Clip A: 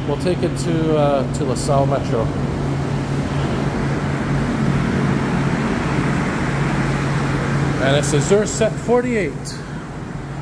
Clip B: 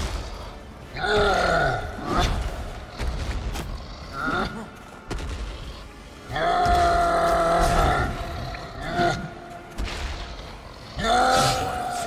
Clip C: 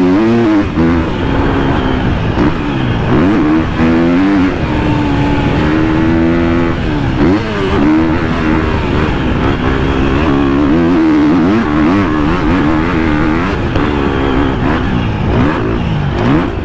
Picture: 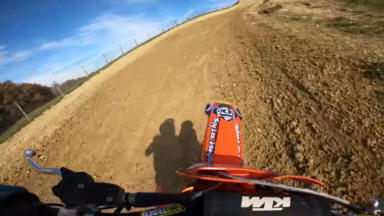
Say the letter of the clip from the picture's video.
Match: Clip C